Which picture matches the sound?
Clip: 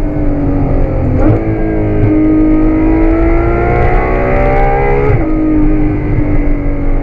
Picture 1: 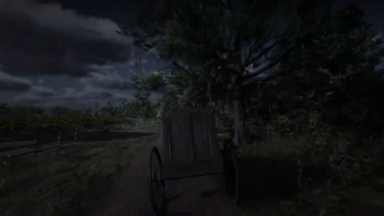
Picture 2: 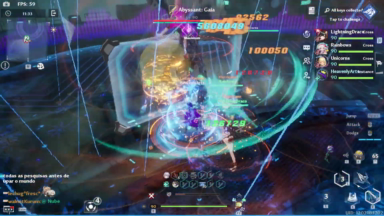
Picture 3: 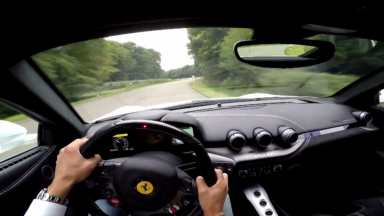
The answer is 3